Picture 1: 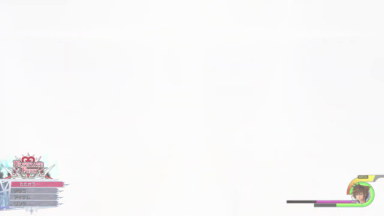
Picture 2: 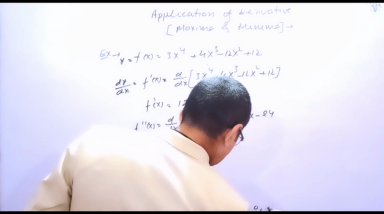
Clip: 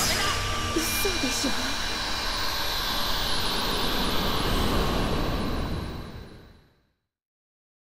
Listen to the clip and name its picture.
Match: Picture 1